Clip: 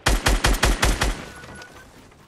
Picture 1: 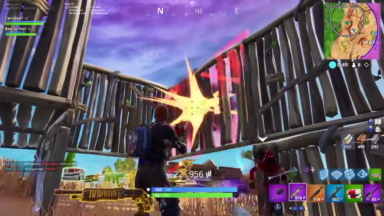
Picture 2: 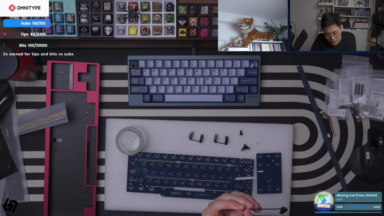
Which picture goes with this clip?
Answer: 1